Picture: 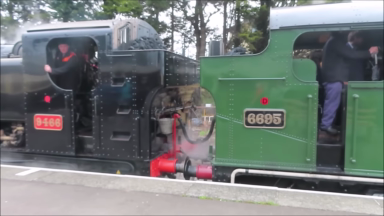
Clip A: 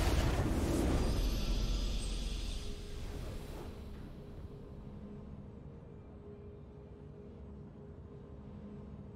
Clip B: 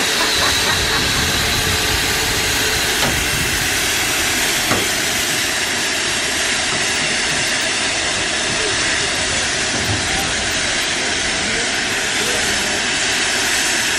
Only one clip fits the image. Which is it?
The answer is B